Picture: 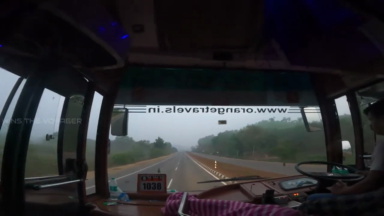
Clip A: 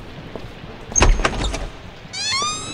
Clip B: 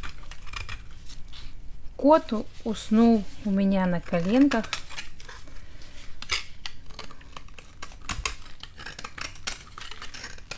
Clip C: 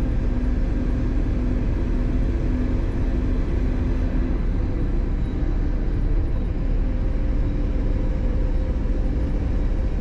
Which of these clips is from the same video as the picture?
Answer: C